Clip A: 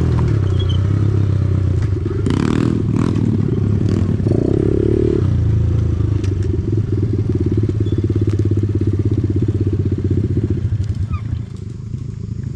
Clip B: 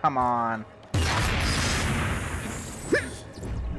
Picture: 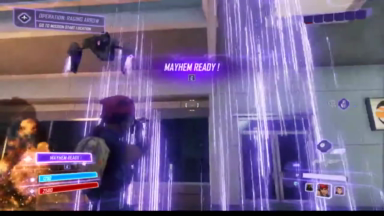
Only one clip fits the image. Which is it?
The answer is B